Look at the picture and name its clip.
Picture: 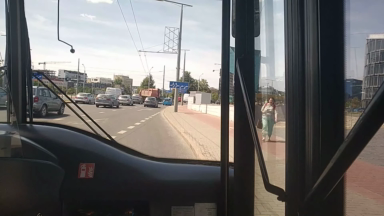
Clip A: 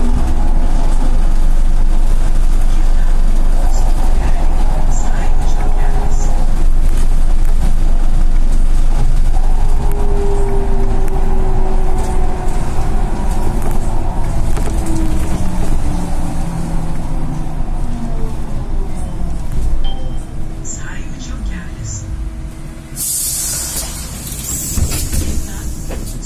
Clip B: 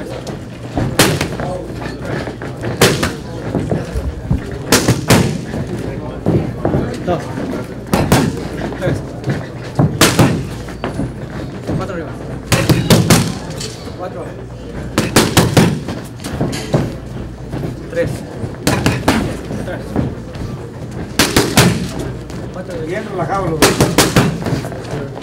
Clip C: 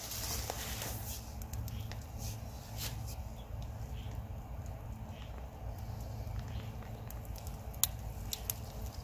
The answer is A